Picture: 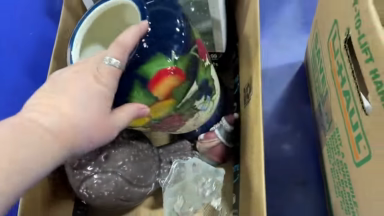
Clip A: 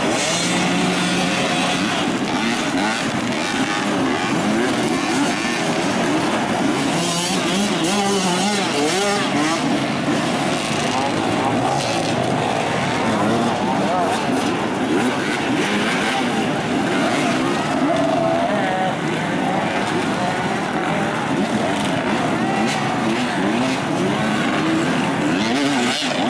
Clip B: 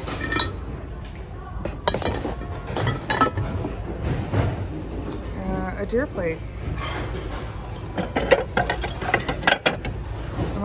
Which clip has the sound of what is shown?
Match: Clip B